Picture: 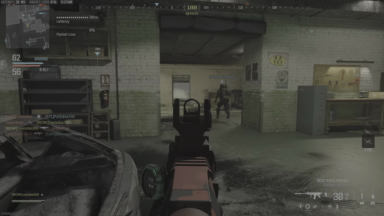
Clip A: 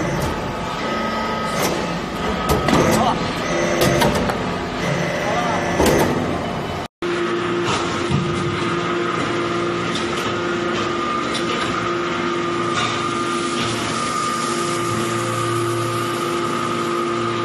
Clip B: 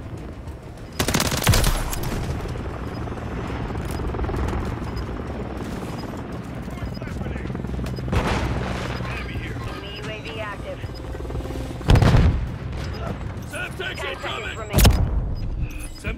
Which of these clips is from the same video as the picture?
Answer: B